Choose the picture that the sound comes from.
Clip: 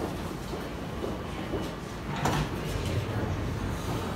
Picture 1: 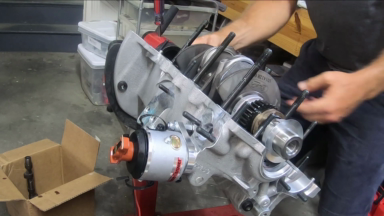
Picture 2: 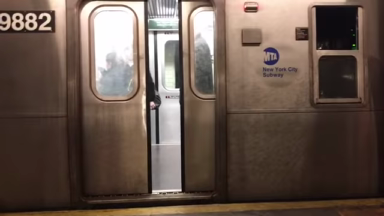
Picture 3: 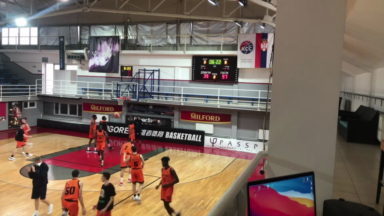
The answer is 2